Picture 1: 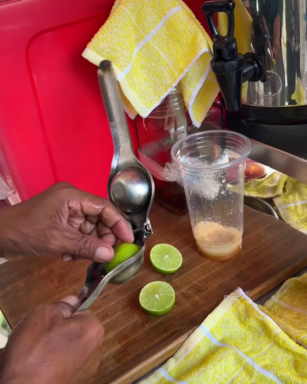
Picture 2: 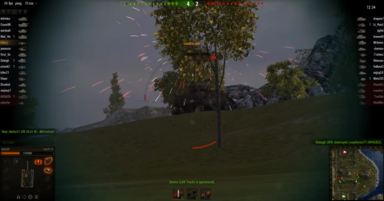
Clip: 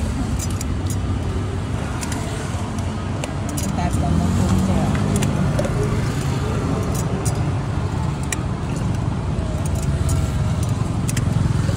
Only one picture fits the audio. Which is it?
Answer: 1